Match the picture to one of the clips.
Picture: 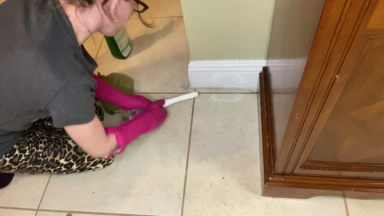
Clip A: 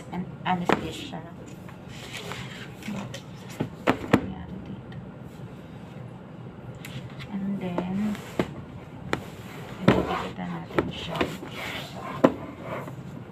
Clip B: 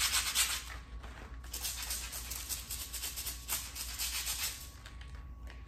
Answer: B